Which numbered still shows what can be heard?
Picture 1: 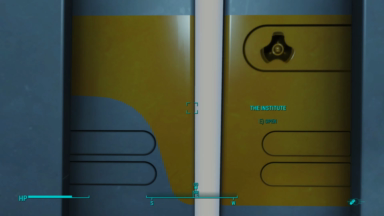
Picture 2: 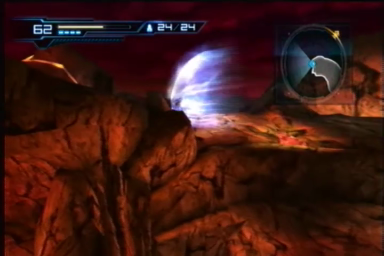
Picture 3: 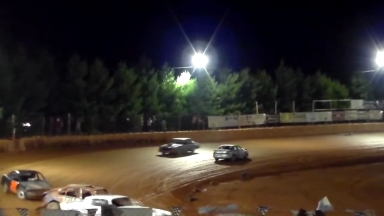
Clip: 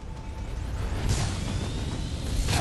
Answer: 2